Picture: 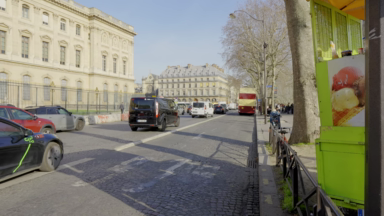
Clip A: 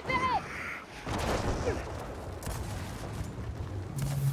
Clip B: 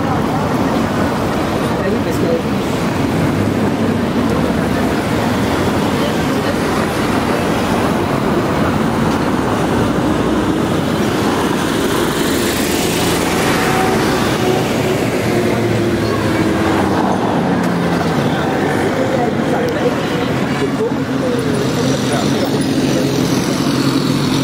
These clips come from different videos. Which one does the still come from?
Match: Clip B